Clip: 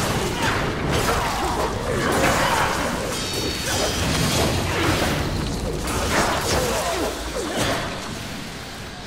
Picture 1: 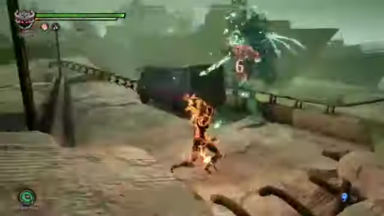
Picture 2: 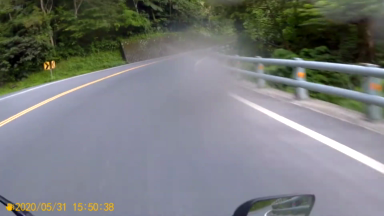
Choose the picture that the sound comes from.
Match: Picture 1